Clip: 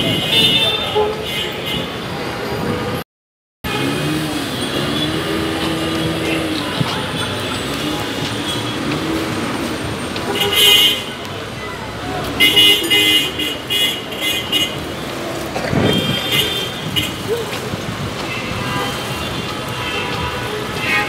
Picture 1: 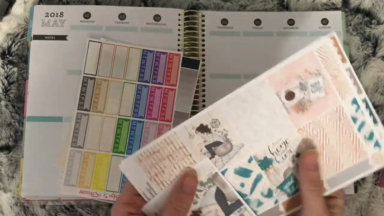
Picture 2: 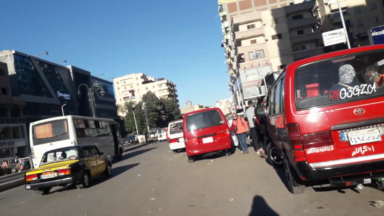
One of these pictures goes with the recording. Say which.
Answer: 2